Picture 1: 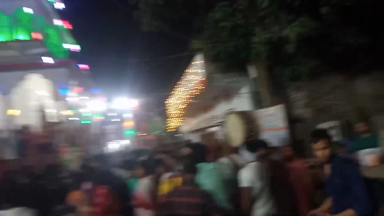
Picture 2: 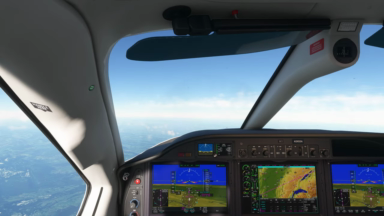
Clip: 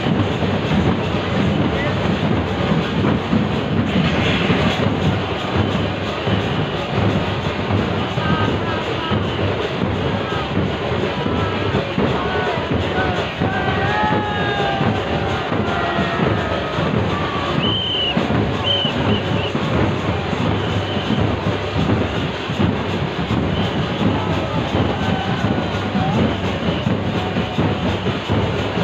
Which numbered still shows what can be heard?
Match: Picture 1